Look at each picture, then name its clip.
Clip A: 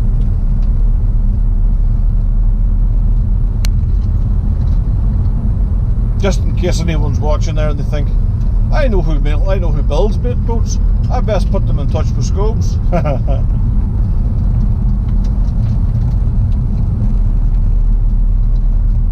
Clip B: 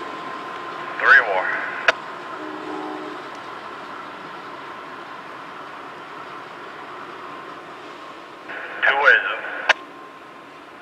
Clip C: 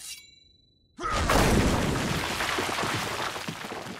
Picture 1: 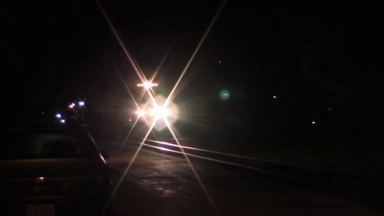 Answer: B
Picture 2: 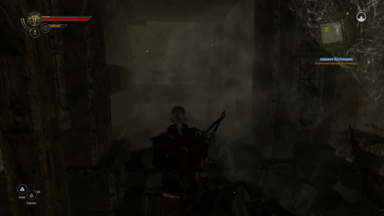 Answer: C